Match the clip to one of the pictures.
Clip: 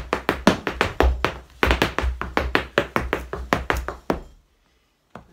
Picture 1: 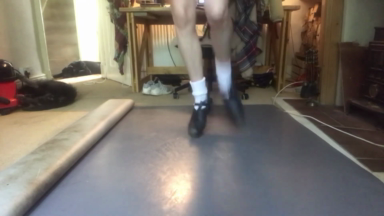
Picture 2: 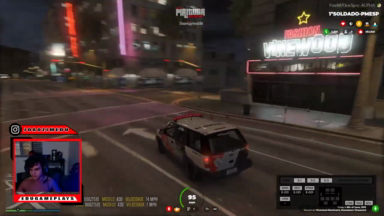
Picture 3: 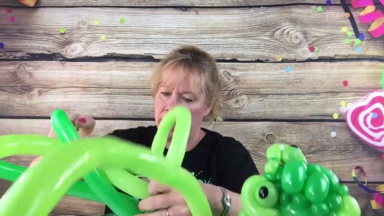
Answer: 1